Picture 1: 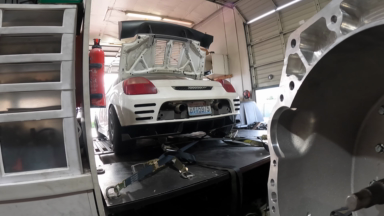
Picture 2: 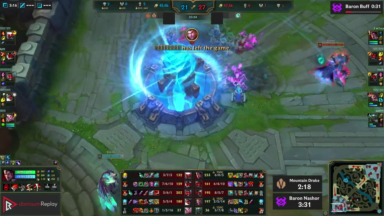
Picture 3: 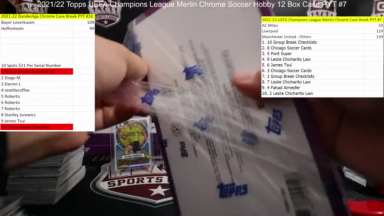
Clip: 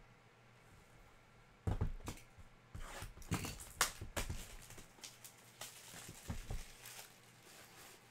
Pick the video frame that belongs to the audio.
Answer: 3